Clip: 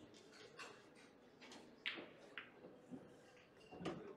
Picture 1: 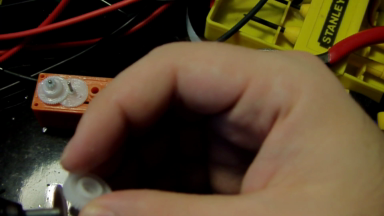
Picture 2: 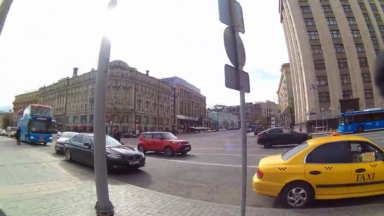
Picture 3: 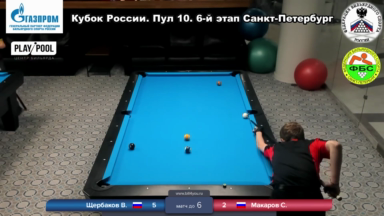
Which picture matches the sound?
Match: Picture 3